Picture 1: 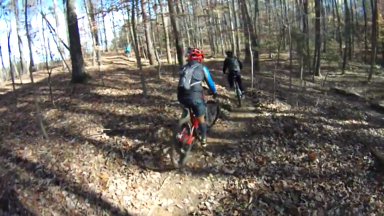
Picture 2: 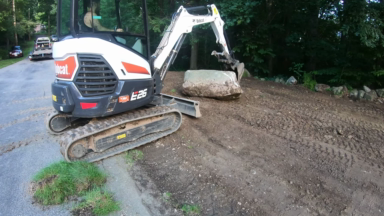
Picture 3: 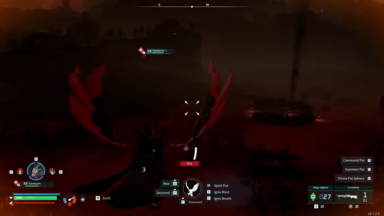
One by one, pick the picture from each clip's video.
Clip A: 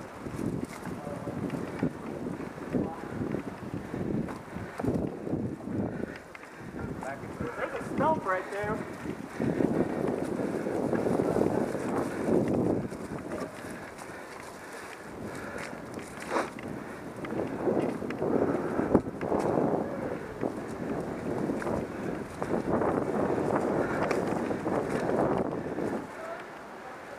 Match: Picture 1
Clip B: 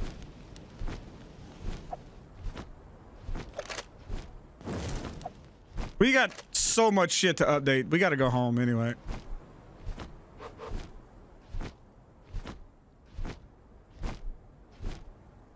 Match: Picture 3